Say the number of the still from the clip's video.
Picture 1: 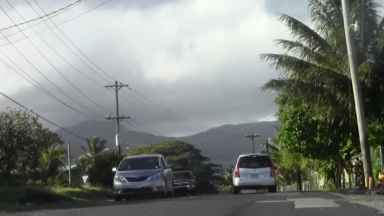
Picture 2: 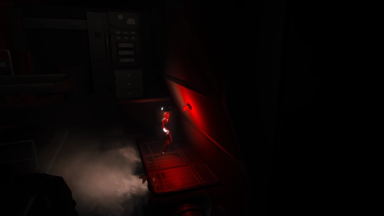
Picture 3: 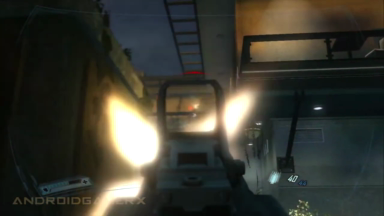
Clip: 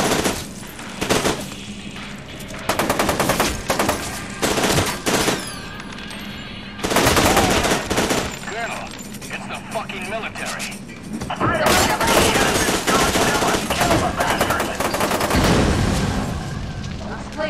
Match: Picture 3